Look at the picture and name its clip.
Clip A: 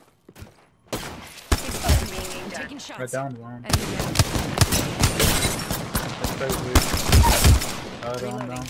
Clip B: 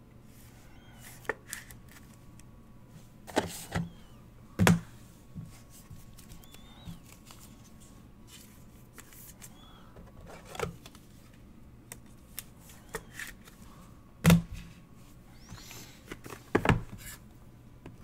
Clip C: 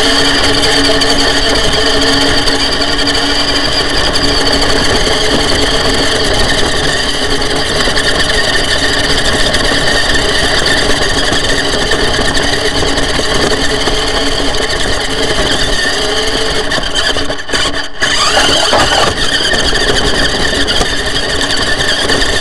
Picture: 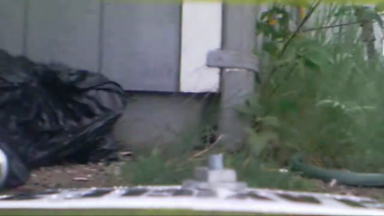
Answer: C